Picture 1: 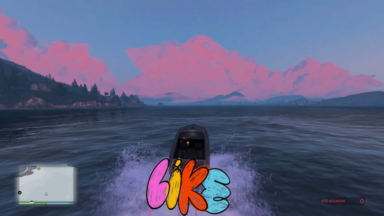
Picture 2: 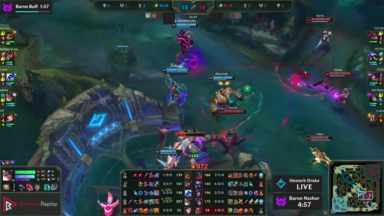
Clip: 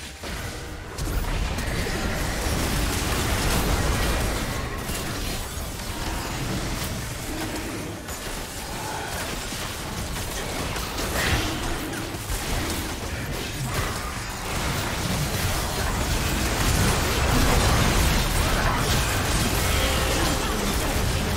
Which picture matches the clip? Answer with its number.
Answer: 2